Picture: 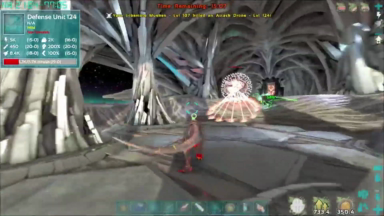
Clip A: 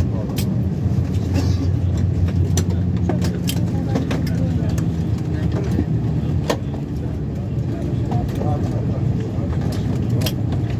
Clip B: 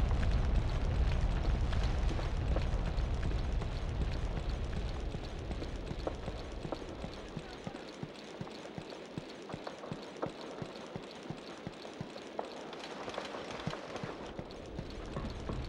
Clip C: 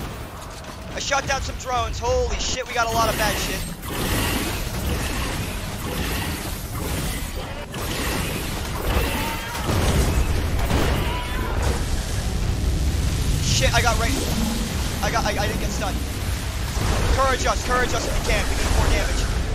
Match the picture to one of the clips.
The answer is C